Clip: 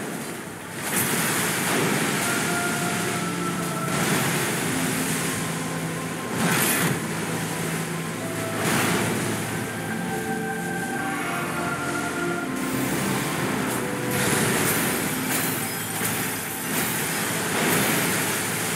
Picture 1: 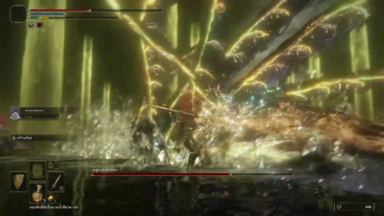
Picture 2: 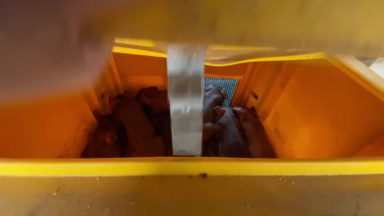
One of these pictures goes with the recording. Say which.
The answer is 1